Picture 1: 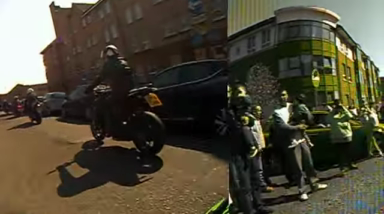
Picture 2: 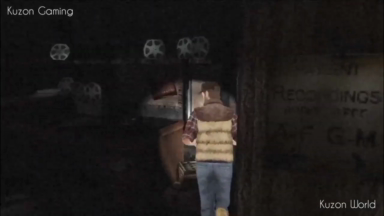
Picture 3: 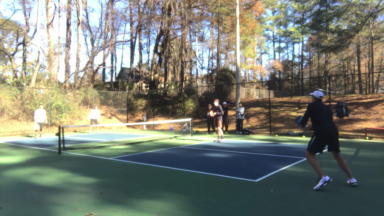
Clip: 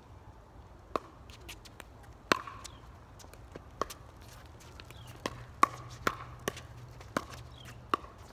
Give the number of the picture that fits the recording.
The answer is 3